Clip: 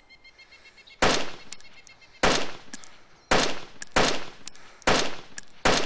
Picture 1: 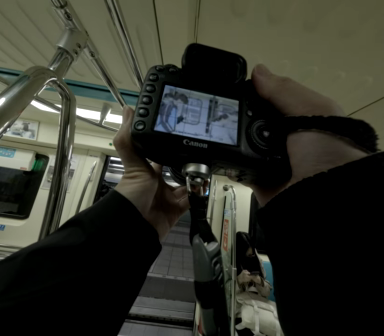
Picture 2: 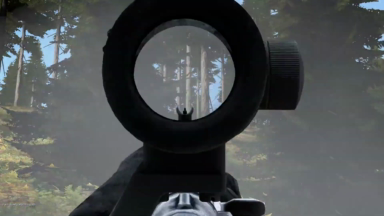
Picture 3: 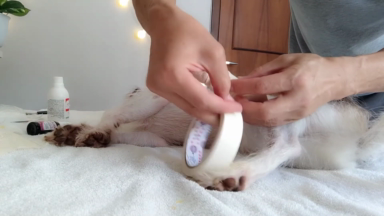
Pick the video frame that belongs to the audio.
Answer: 2